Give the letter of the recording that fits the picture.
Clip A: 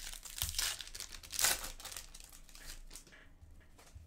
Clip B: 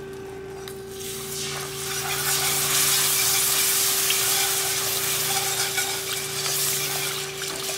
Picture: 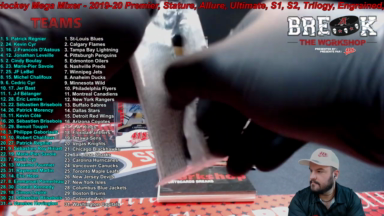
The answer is A